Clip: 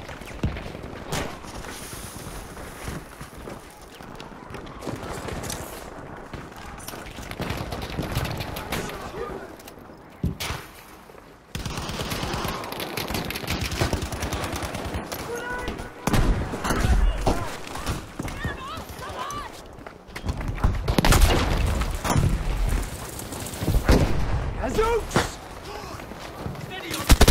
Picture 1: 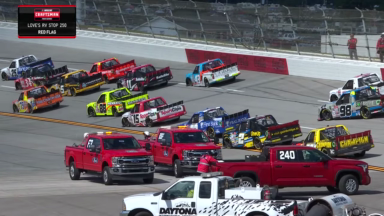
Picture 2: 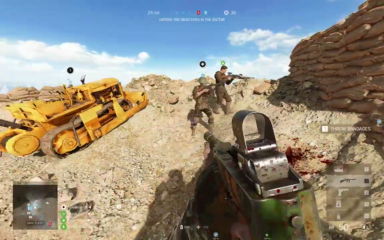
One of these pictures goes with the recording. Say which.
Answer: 2